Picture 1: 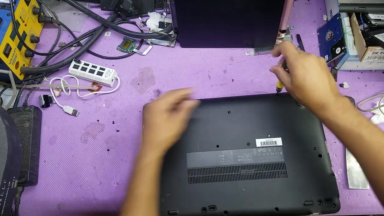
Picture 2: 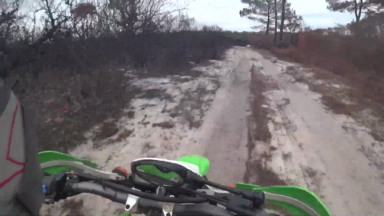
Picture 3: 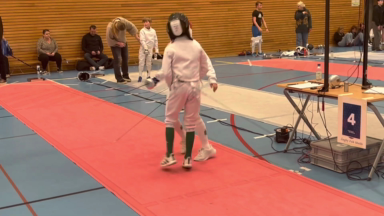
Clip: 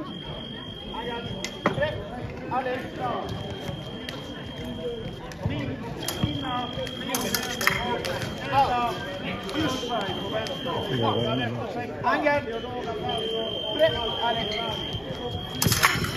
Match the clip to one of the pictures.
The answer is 3